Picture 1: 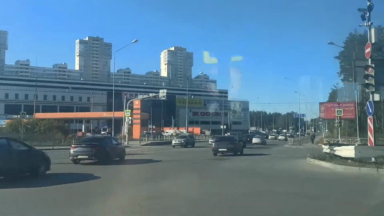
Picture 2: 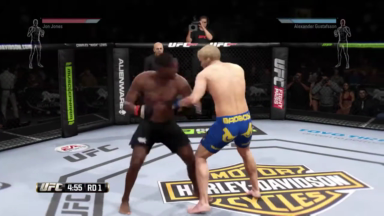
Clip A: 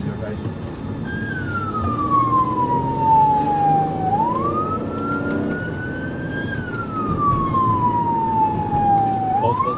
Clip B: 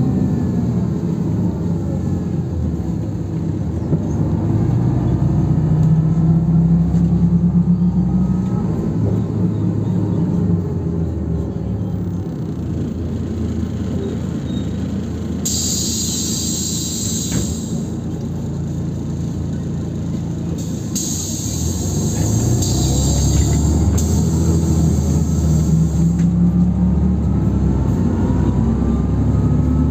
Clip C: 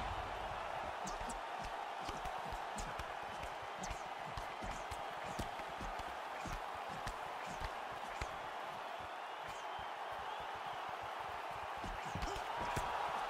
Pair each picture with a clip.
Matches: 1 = B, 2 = C